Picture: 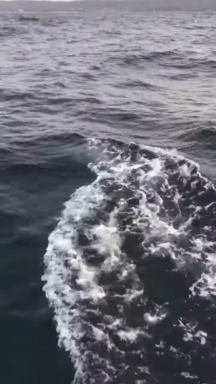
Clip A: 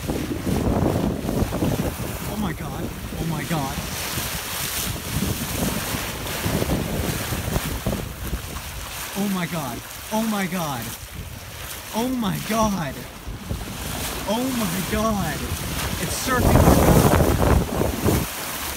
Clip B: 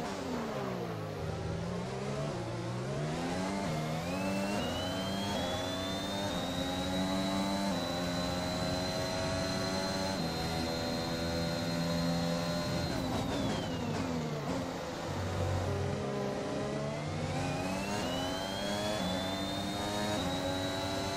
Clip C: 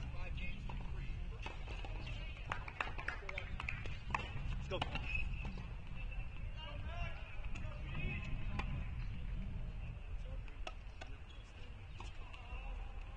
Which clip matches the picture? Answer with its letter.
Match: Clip A